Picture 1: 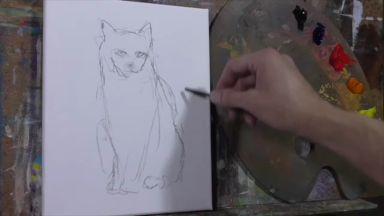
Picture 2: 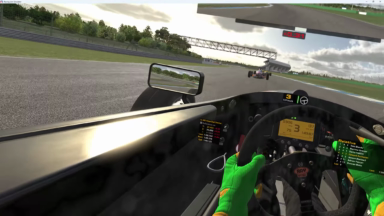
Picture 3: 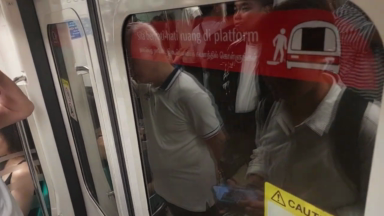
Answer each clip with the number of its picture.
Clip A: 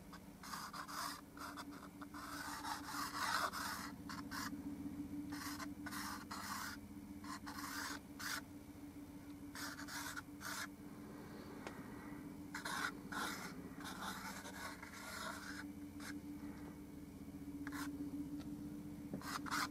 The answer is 1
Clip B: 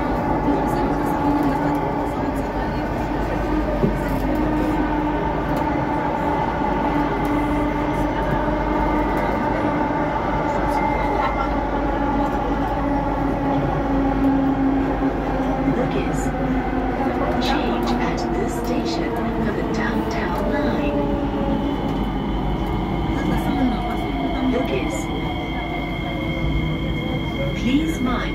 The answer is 3